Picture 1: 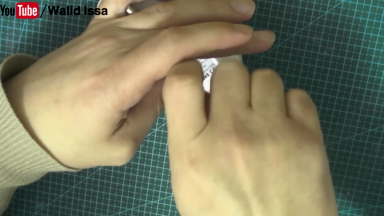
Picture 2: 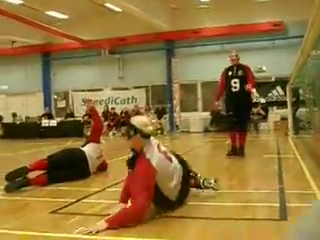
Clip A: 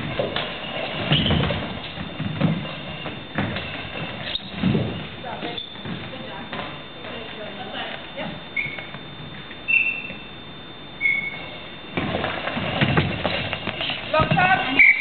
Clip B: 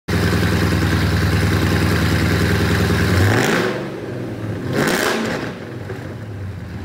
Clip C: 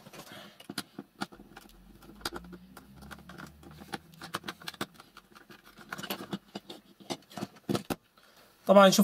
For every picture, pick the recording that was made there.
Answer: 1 C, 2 A